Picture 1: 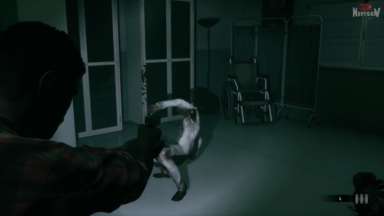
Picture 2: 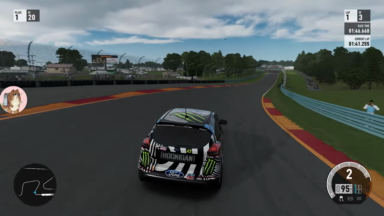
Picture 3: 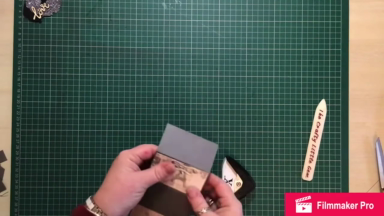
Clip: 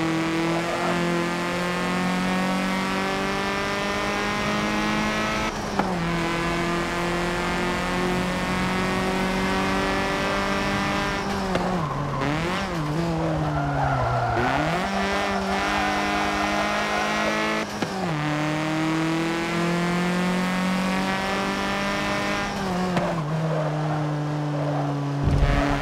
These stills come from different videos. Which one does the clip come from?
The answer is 2